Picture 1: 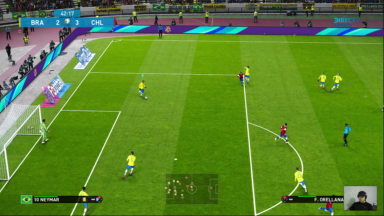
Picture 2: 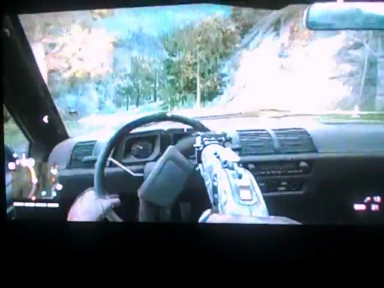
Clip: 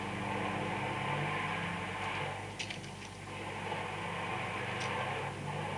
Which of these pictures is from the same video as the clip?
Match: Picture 2